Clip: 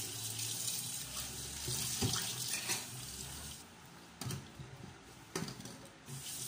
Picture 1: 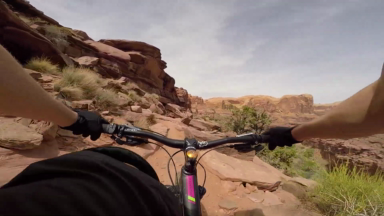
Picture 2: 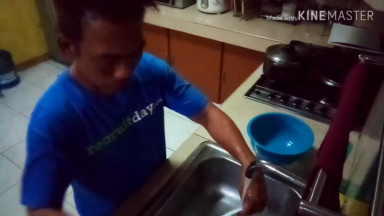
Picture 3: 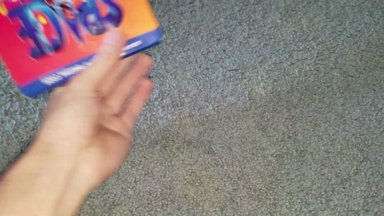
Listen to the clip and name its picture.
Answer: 2